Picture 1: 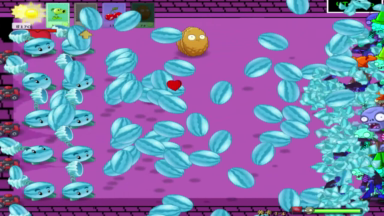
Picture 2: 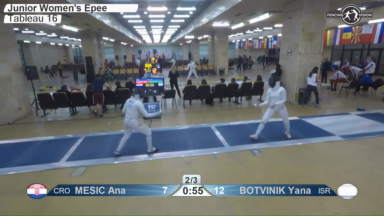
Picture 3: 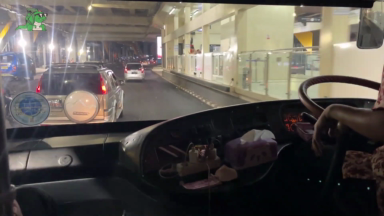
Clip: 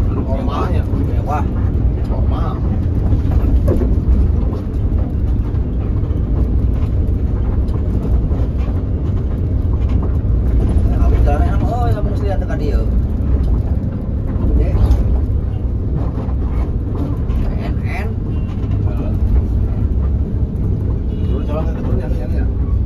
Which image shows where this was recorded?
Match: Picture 3